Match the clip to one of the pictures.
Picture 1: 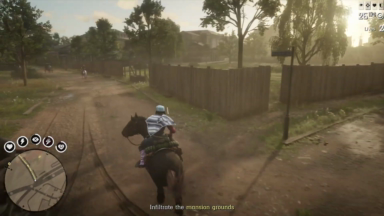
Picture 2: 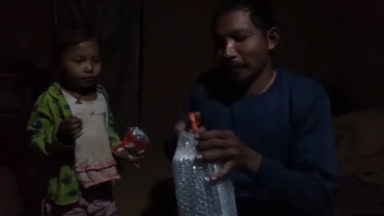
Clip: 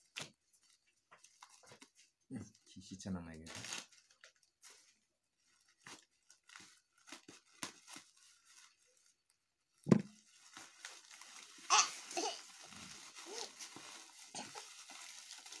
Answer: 2